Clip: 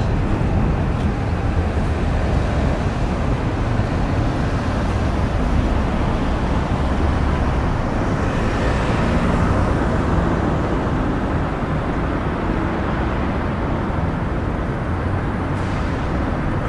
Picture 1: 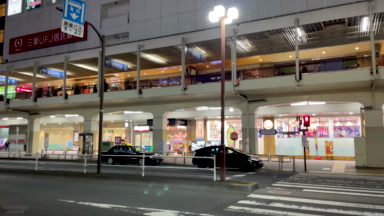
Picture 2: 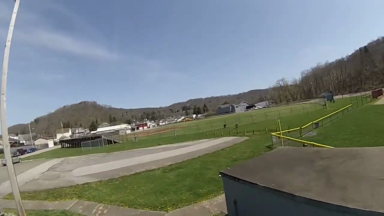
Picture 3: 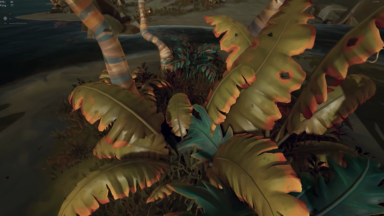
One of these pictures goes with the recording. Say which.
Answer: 1